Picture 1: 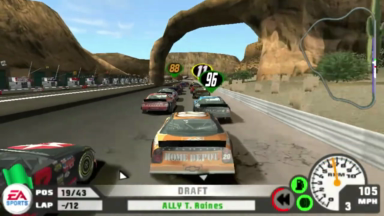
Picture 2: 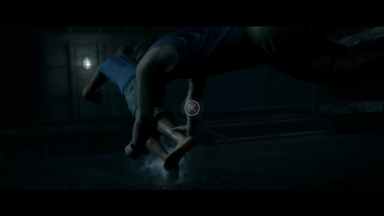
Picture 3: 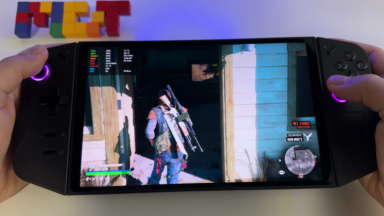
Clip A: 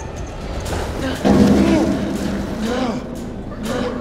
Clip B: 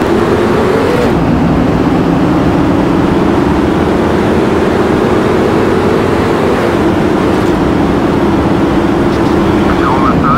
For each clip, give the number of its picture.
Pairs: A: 2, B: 1